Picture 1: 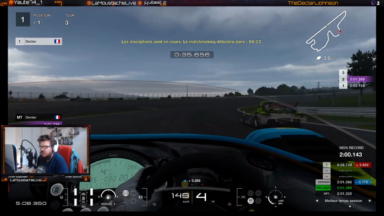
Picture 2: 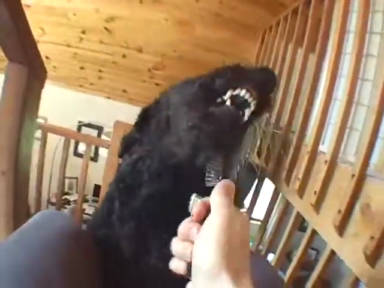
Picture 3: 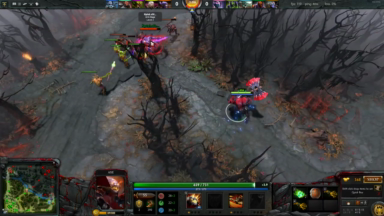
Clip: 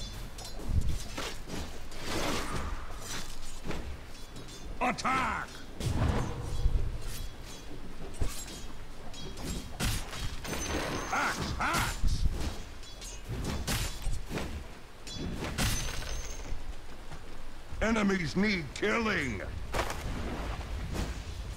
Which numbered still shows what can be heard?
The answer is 3